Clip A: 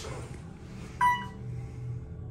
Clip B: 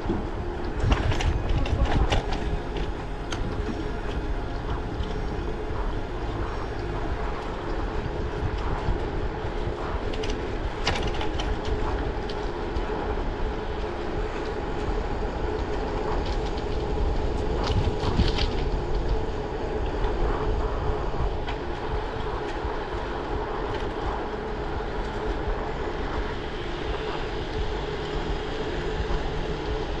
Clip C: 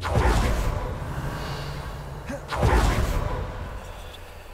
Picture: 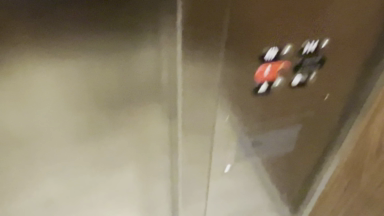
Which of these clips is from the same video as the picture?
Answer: A